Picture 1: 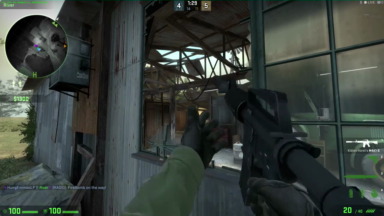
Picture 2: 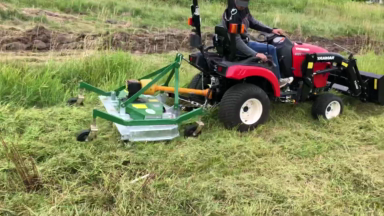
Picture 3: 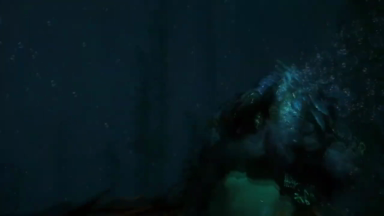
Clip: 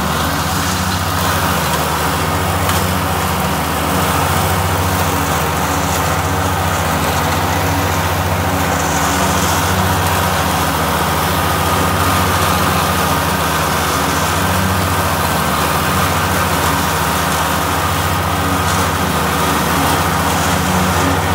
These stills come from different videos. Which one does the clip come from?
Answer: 2